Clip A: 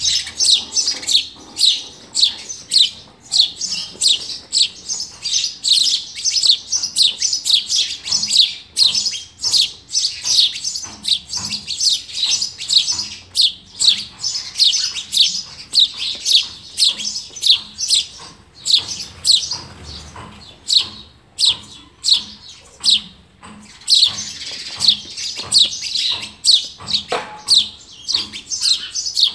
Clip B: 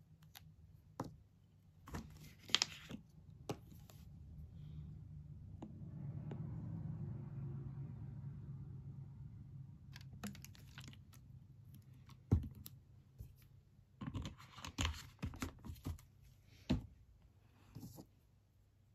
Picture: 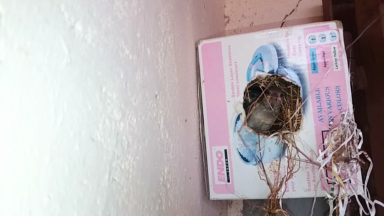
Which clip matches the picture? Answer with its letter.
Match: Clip A